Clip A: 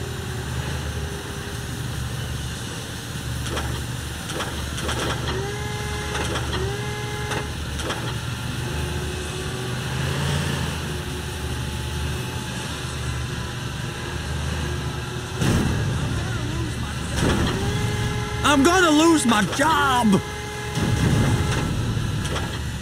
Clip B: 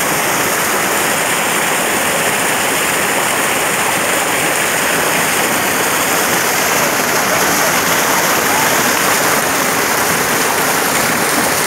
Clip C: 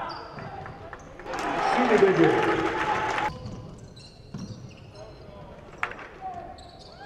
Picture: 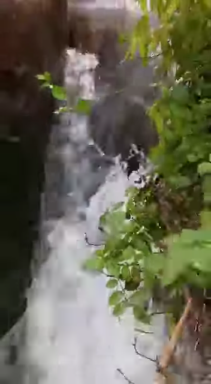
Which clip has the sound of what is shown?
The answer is B